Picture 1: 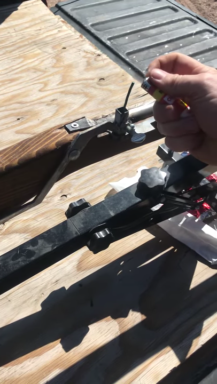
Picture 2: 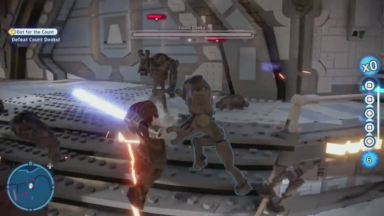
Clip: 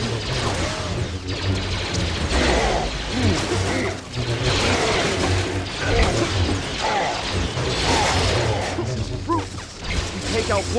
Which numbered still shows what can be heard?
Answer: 2